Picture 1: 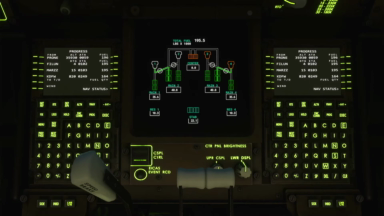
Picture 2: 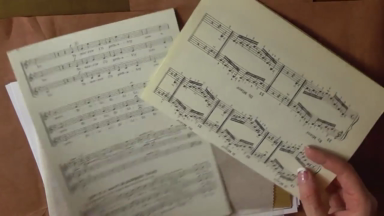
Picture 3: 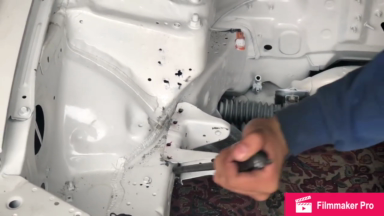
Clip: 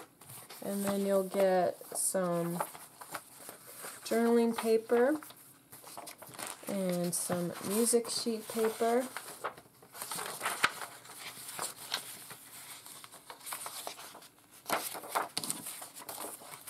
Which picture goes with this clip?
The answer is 2